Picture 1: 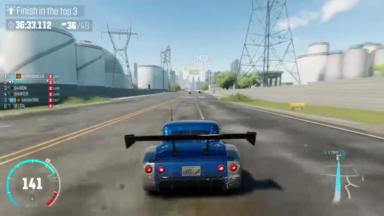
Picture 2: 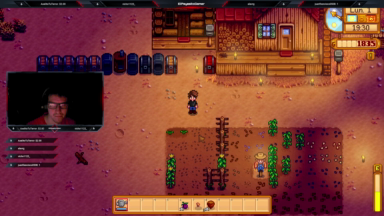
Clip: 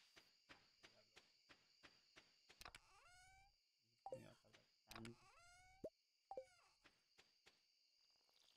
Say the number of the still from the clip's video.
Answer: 2